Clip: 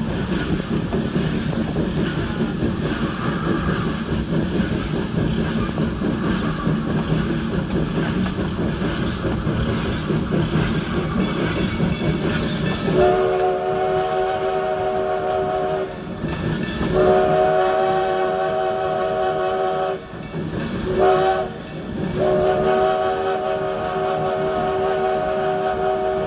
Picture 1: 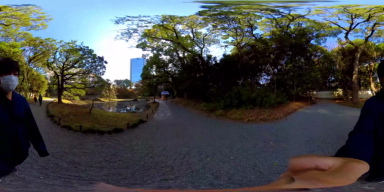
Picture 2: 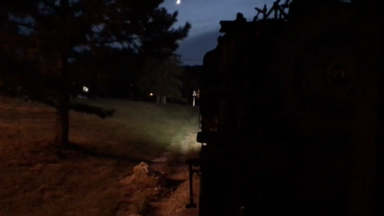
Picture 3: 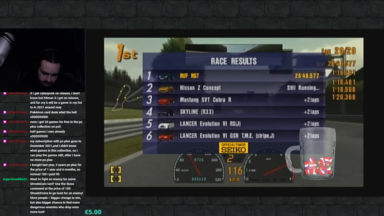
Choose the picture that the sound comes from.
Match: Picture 2